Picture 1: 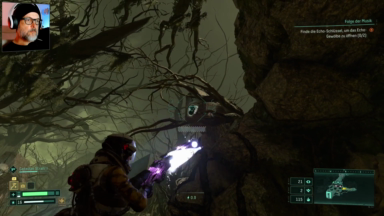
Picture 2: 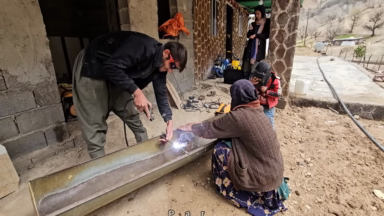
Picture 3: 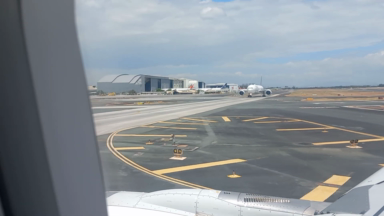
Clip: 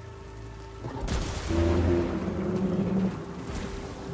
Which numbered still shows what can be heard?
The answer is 1